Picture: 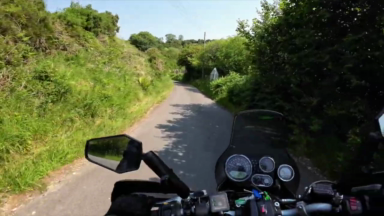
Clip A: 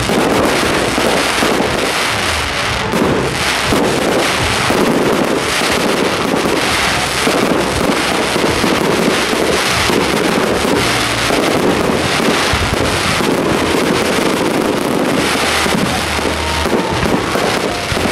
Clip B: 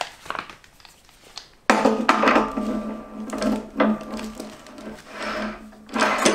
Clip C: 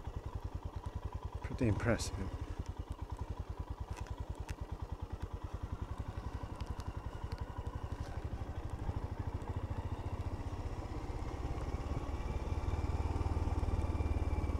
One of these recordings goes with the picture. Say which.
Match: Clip C